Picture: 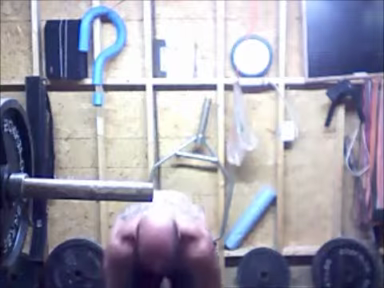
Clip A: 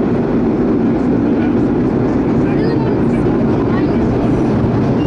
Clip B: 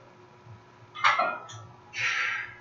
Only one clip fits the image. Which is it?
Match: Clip B